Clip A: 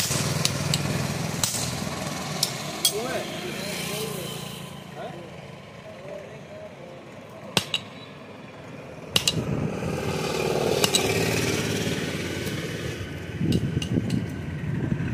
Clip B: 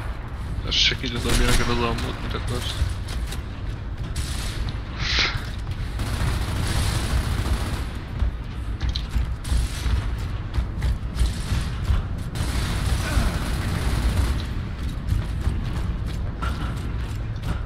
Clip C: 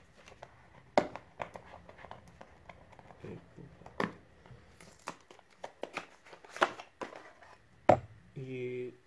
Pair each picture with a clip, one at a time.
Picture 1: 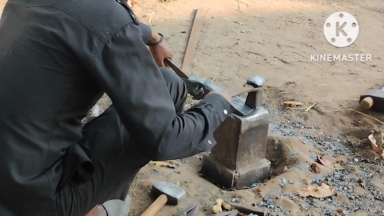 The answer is A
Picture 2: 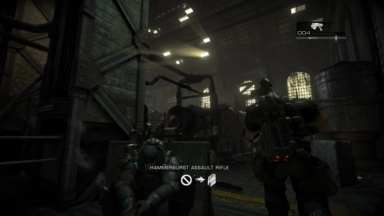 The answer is B